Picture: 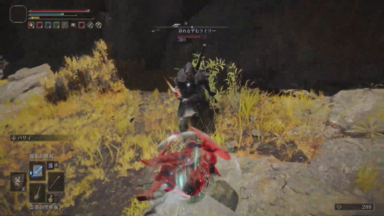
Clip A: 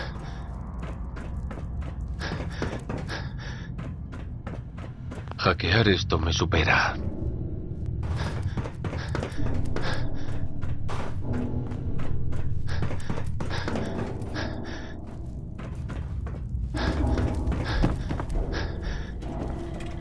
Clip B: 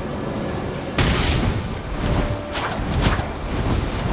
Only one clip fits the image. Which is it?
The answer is B